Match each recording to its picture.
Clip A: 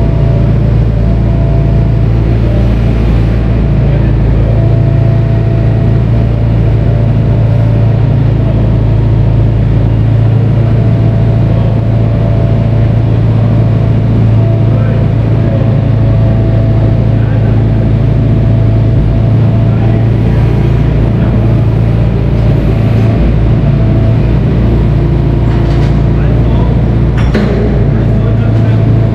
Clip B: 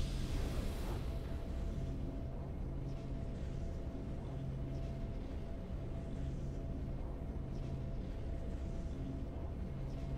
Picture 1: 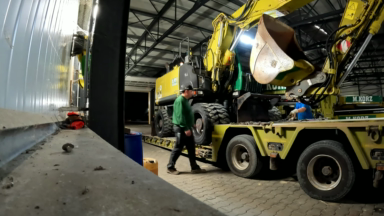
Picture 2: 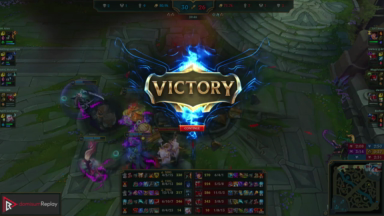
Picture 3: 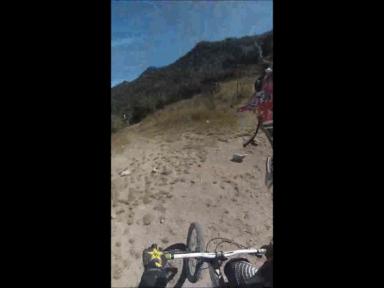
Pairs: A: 1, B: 2